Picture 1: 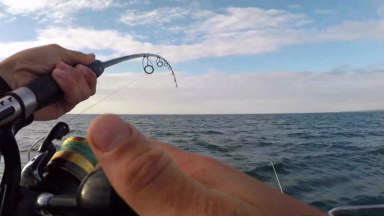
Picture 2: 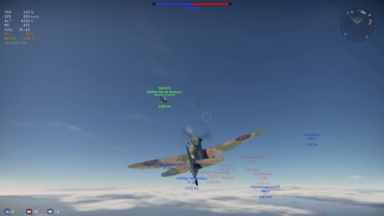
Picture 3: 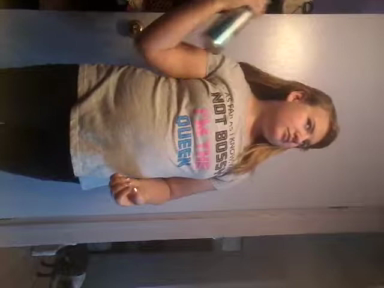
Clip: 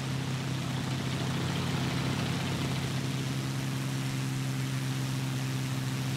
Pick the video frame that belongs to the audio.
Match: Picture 2